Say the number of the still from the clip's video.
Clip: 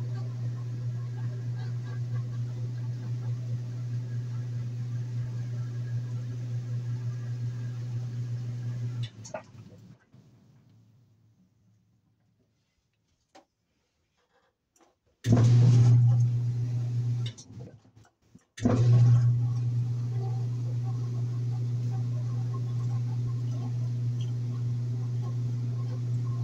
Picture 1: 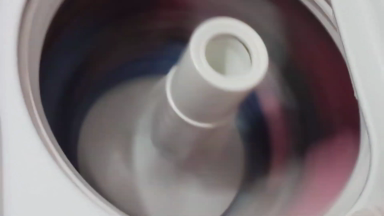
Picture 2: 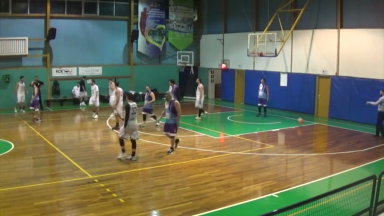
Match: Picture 1